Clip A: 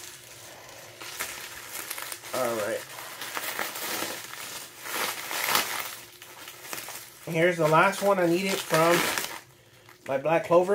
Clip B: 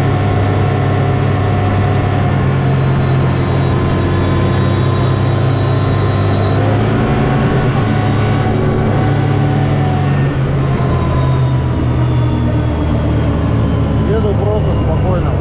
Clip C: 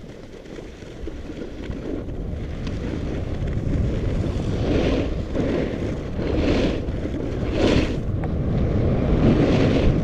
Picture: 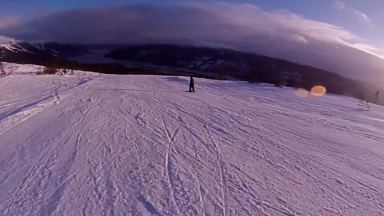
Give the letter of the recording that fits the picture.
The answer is C